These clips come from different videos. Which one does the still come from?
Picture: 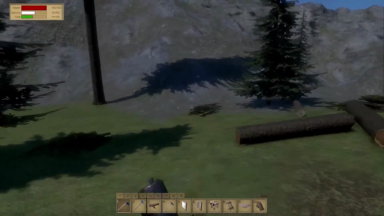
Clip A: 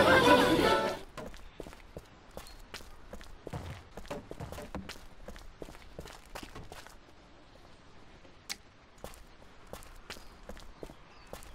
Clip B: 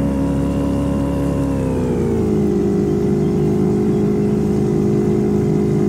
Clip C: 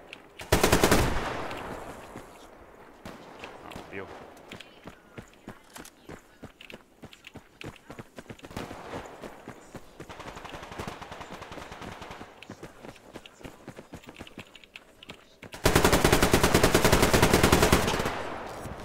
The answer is A